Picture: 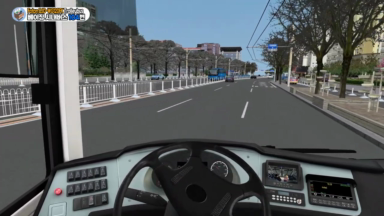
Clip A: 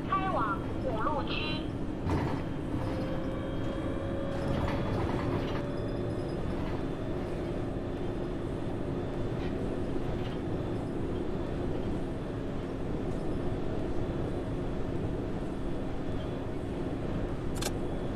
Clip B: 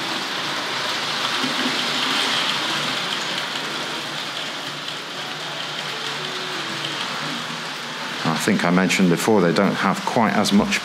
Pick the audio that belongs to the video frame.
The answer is A